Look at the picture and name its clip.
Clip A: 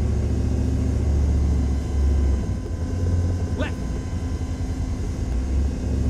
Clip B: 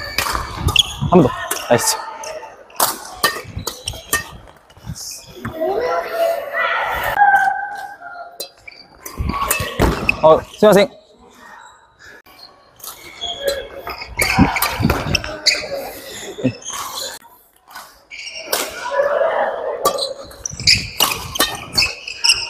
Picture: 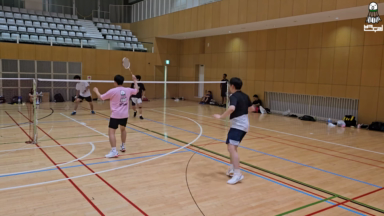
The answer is B